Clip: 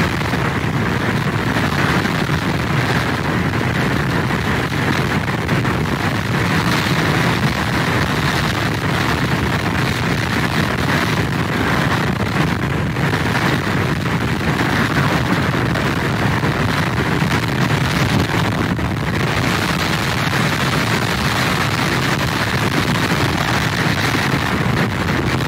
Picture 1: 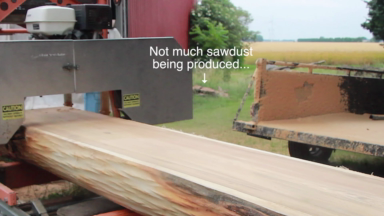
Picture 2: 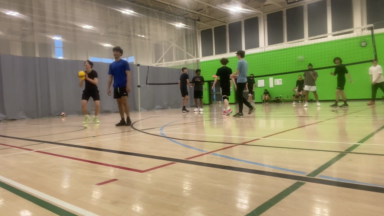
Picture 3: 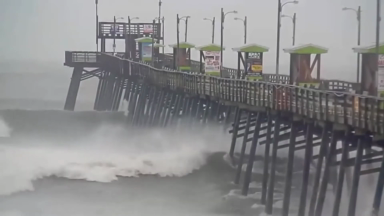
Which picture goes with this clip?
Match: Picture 3